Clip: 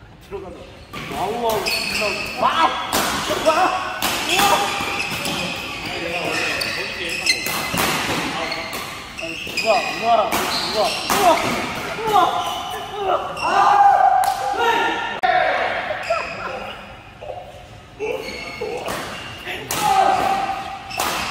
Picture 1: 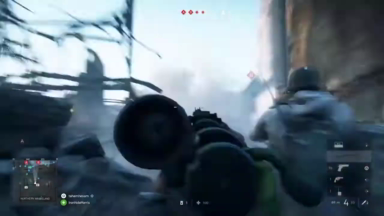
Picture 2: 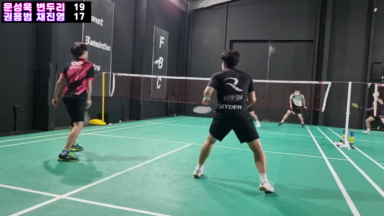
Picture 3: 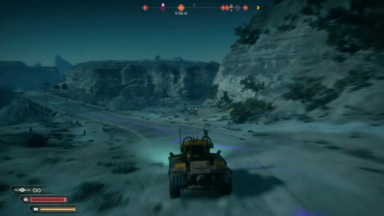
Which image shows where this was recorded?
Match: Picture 2